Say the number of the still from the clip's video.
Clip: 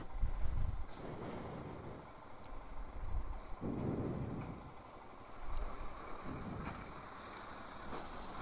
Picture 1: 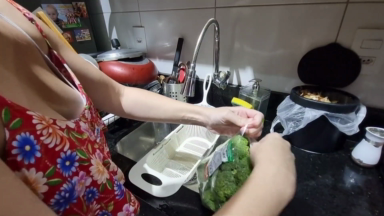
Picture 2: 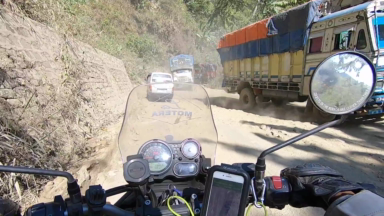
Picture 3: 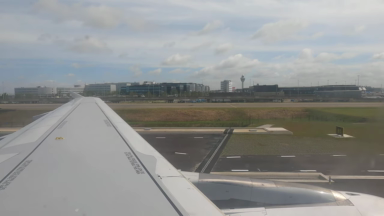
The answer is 2